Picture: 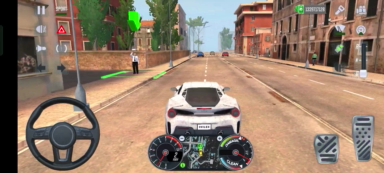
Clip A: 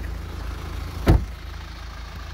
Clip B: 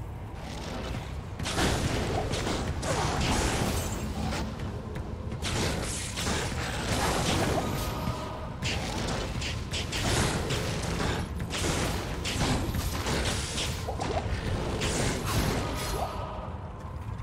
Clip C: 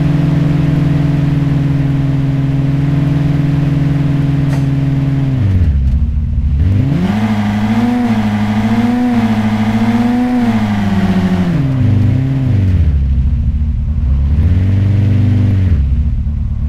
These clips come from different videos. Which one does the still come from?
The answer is C